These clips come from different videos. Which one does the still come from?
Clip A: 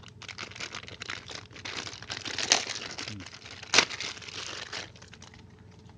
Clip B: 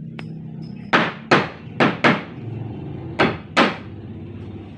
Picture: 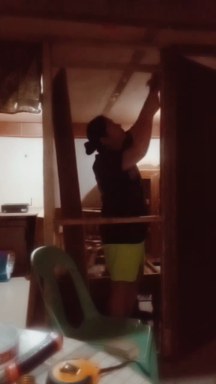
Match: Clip B